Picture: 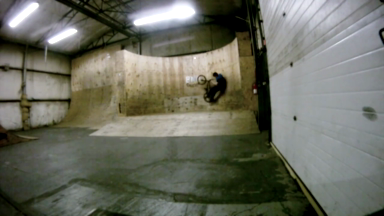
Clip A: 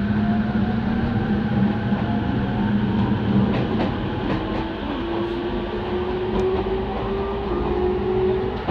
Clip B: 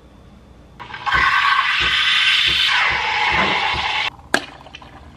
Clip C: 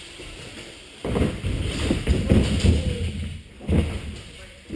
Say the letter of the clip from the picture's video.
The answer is C